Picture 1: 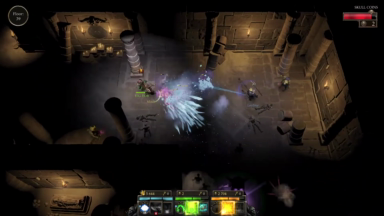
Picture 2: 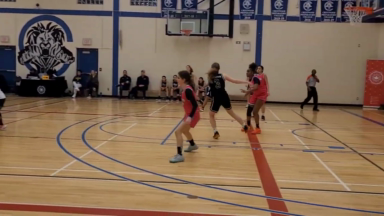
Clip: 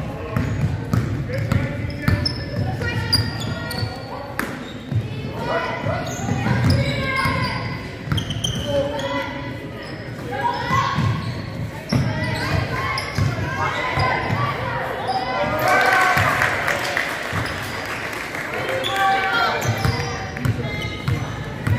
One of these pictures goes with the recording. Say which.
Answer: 2